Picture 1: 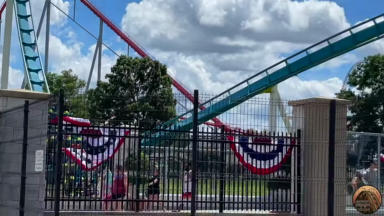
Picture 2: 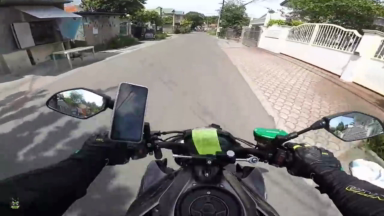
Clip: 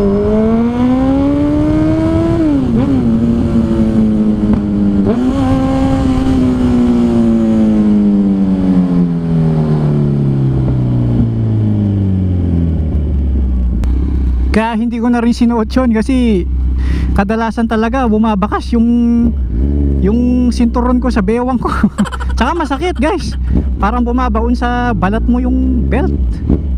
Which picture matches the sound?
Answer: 2